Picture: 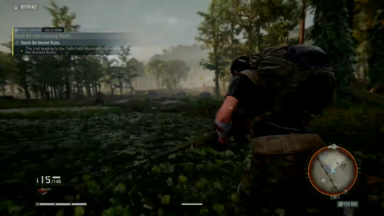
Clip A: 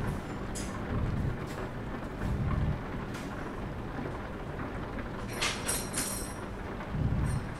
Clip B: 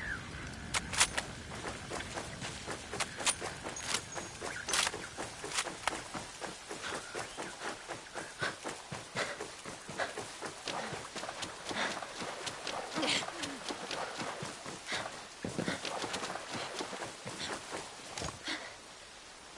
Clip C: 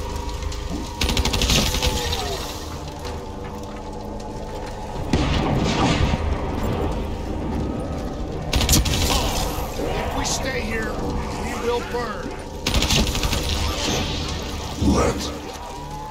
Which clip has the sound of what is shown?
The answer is B